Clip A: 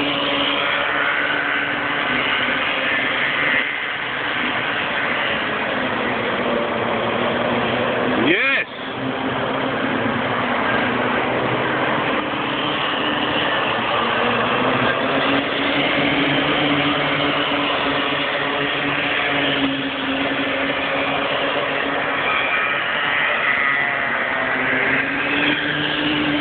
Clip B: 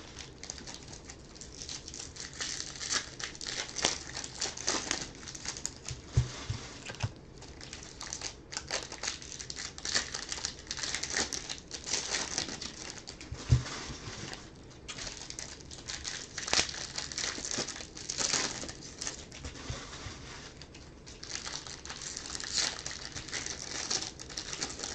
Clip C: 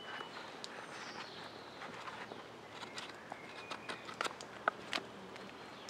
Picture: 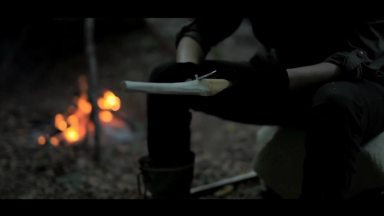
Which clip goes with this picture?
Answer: C